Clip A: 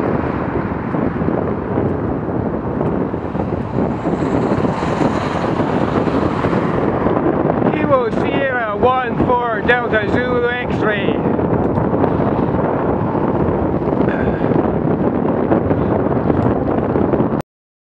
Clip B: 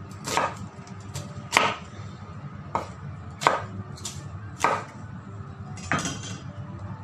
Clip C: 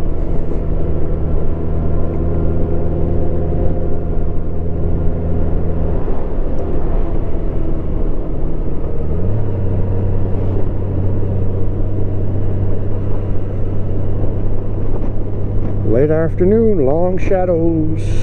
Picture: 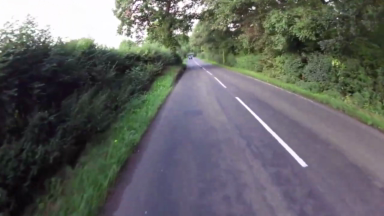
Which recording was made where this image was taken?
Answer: A